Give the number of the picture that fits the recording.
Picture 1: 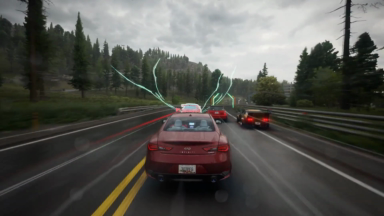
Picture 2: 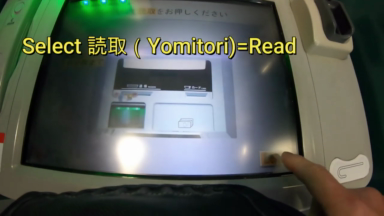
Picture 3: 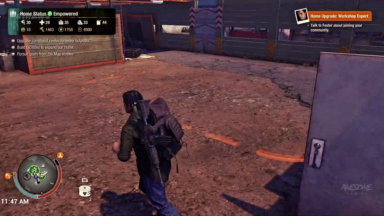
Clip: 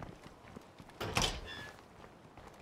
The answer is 3